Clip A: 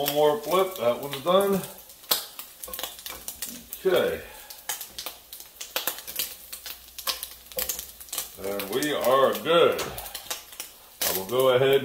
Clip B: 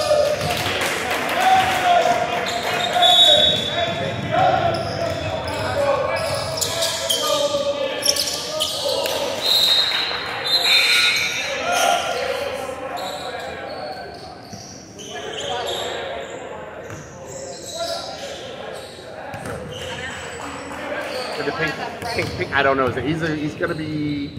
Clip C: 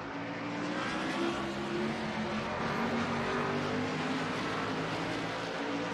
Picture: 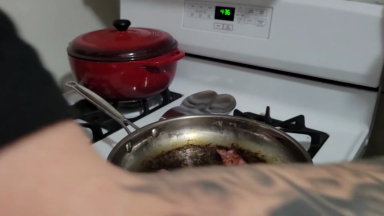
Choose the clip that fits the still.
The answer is A